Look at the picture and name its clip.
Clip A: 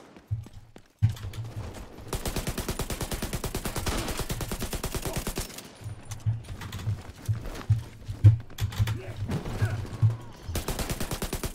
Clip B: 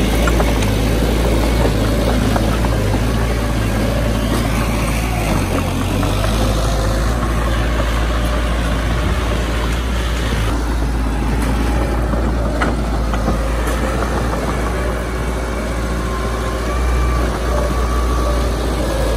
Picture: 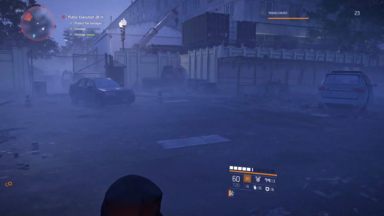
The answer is A